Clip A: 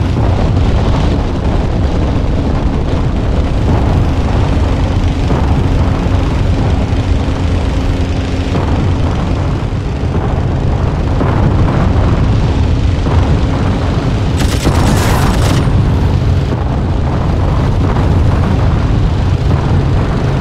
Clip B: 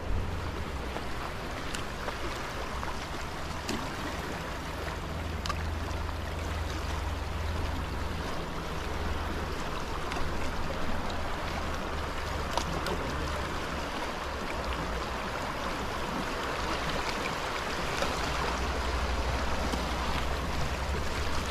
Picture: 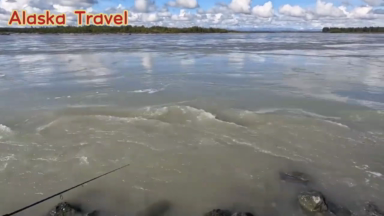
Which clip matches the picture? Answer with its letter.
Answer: B